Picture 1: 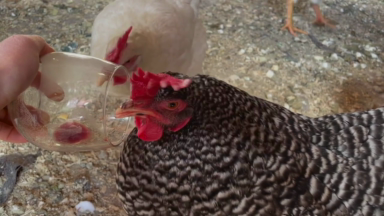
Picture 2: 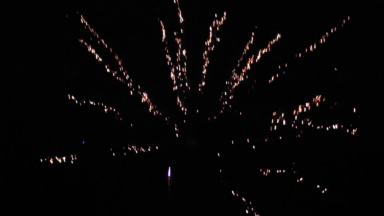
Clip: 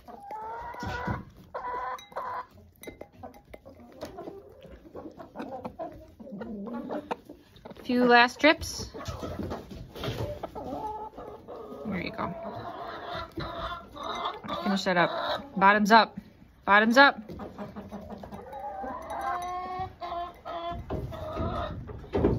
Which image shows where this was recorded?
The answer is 1